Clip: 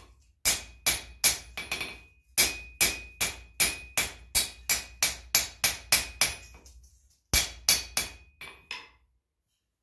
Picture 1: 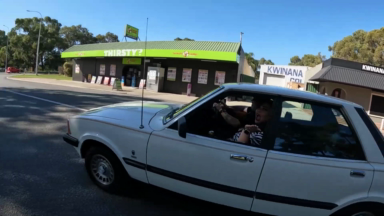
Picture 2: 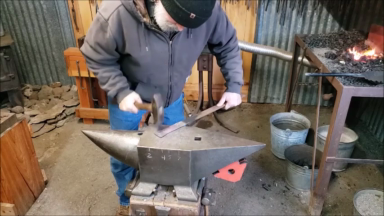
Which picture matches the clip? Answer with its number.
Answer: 2